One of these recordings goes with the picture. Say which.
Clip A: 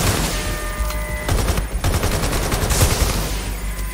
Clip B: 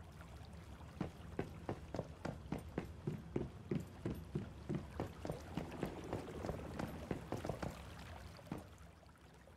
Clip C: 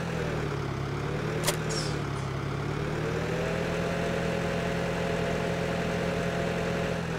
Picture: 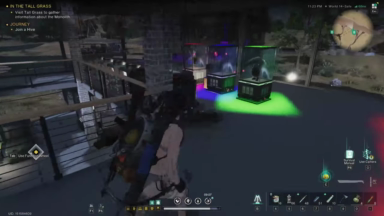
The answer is B